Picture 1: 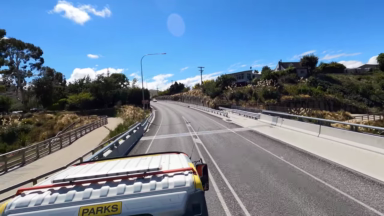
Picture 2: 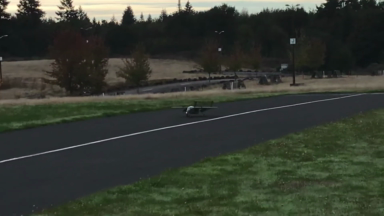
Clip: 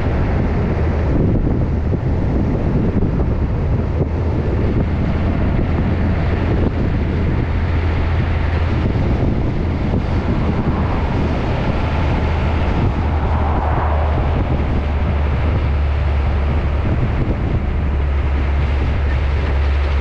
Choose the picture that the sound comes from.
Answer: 1